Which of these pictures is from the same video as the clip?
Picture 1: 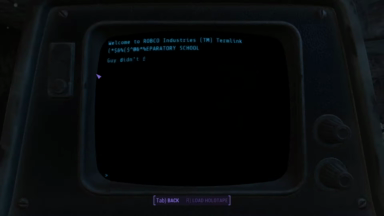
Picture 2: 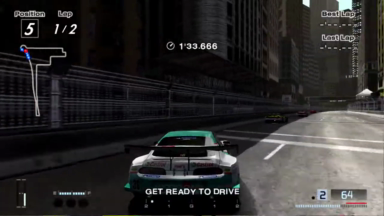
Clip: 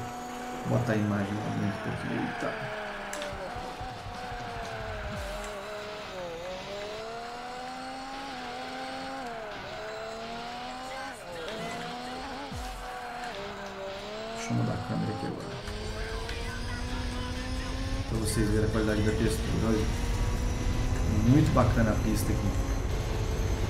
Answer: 2